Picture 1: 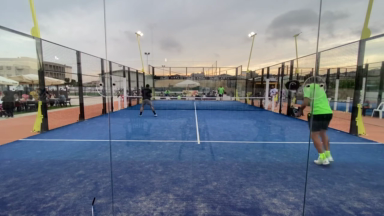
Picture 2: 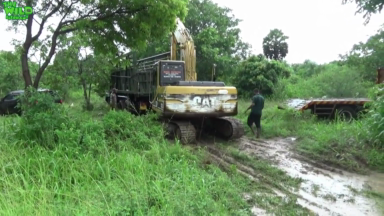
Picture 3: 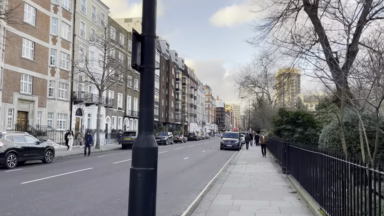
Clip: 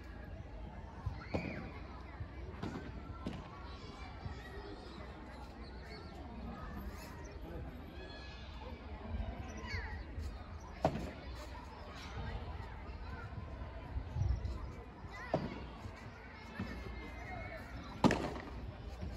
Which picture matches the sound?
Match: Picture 1